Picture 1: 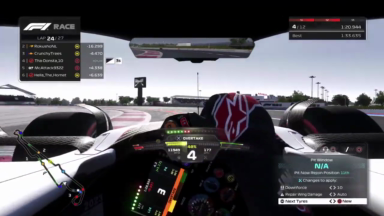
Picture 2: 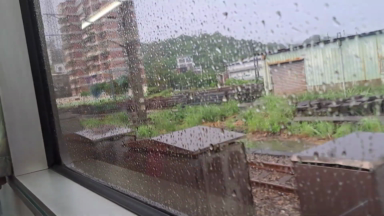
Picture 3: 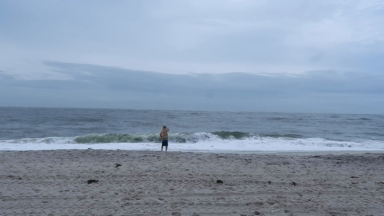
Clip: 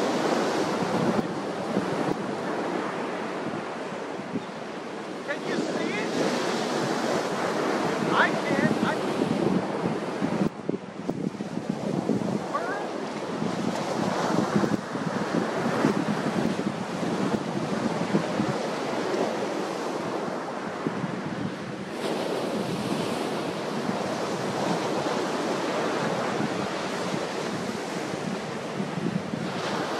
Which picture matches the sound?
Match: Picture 3